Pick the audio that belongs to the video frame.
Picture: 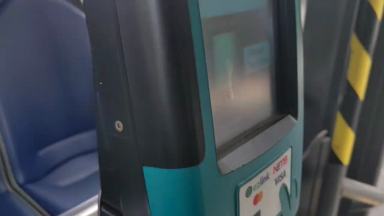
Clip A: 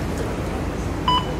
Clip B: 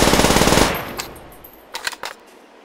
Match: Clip A